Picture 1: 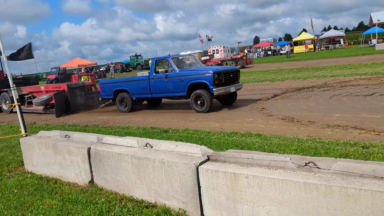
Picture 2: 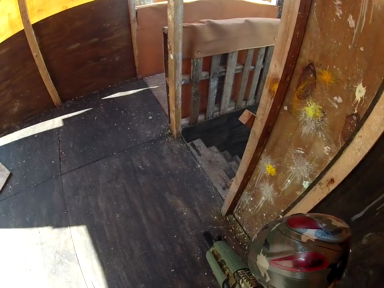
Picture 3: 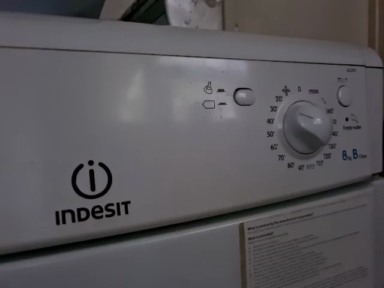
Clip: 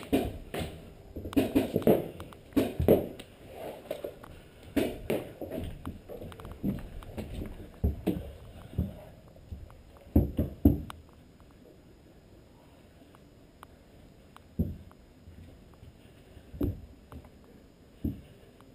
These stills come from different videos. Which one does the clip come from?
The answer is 2